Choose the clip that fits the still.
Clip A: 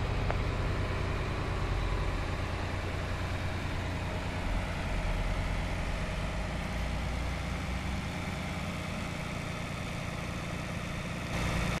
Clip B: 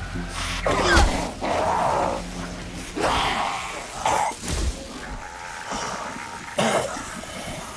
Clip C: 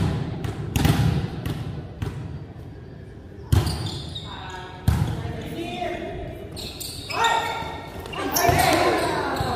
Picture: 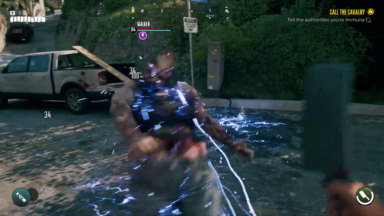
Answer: B